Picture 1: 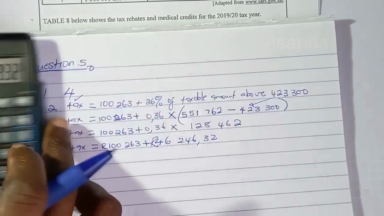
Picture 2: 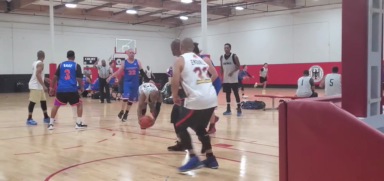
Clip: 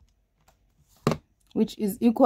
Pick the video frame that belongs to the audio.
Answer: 1